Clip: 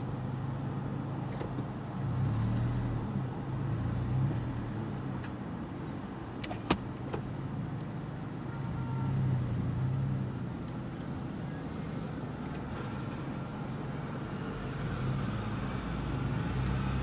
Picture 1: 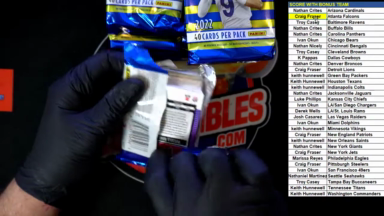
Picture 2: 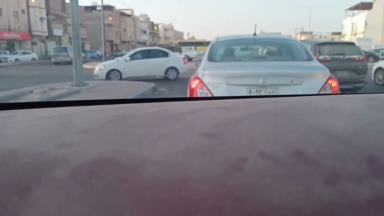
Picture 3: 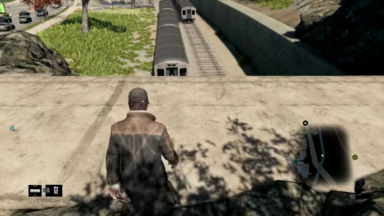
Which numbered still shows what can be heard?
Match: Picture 2